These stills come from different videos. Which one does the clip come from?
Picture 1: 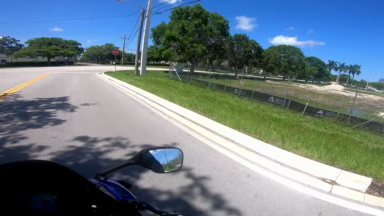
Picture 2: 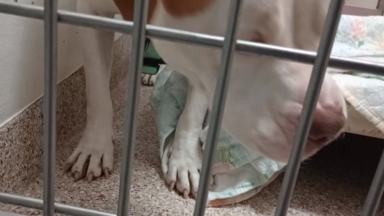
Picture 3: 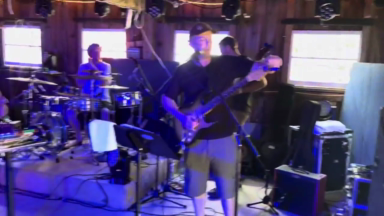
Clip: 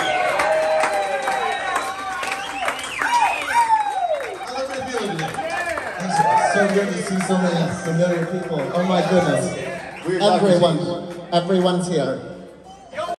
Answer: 3